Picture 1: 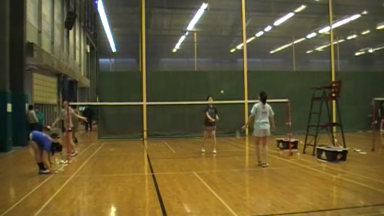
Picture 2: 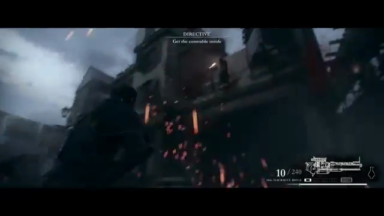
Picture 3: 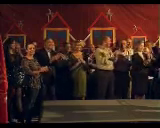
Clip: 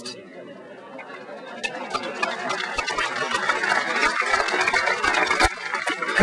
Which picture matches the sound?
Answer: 3